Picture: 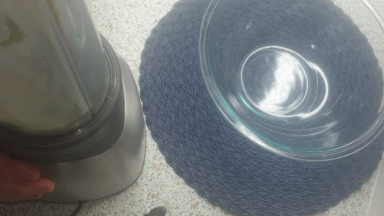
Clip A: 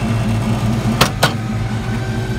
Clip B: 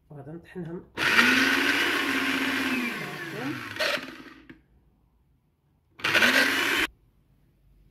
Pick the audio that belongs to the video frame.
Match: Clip B